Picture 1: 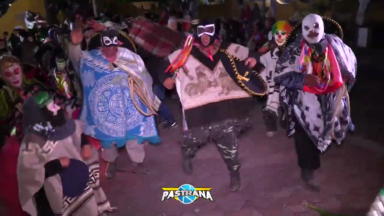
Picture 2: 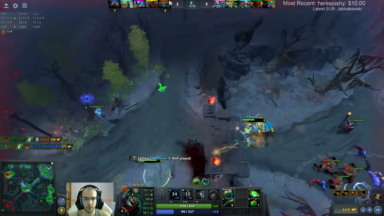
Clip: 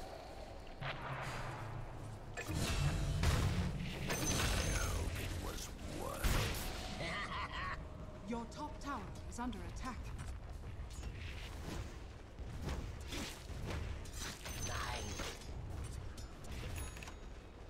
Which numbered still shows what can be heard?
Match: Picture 2